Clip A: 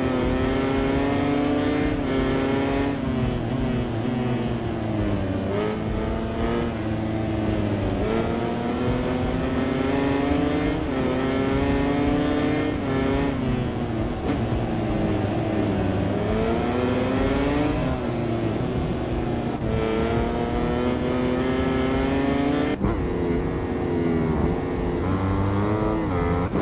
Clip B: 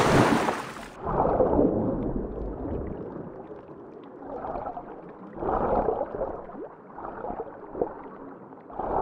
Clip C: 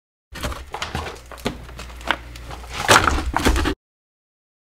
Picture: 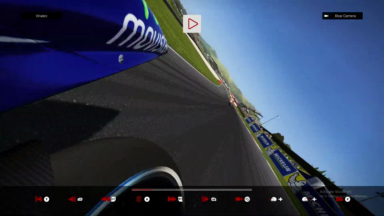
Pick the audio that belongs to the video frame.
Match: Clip A